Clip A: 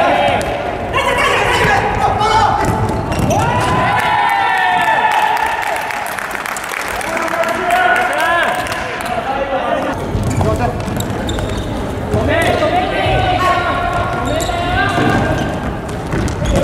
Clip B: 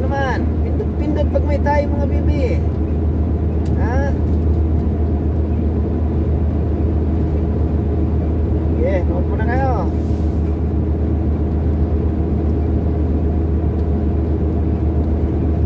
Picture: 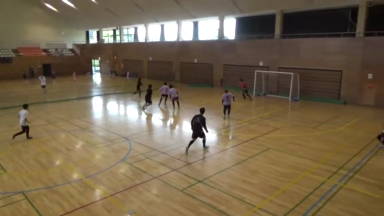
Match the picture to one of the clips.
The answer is A